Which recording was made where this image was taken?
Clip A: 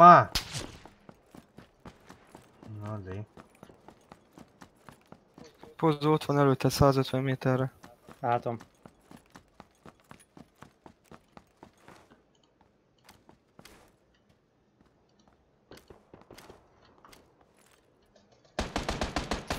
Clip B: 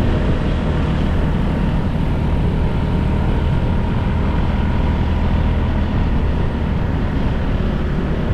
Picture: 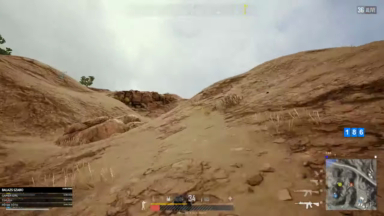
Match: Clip A